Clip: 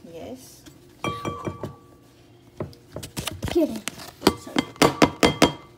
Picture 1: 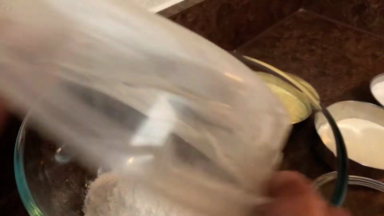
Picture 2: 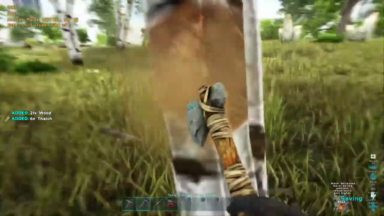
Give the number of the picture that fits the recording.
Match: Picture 1